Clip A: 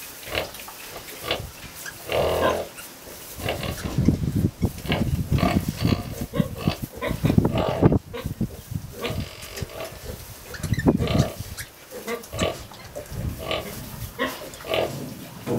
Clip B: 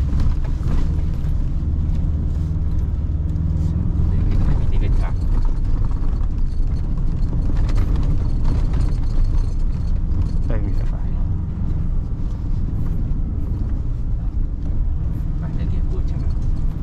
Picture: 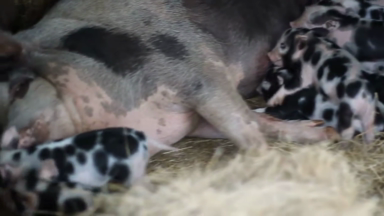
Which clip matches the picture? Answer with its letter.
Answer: A